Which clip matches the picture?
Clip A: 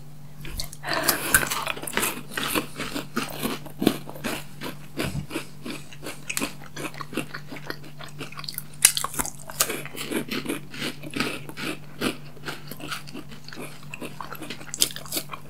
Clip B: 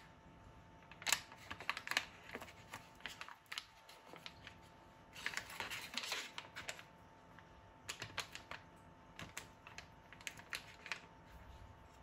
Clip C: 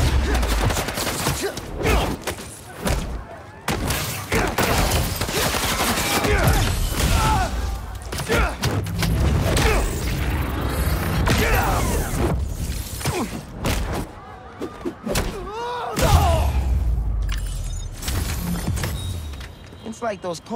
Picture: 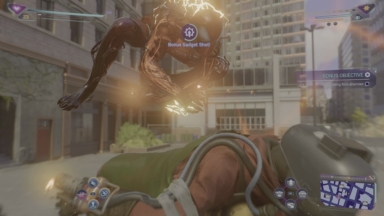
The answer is C